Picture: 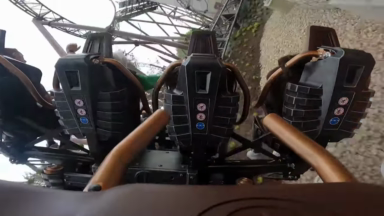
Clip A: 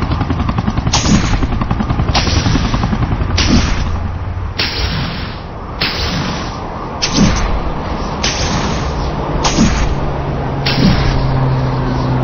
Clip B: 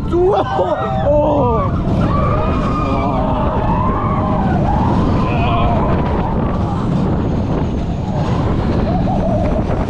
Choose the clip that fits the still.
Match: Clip B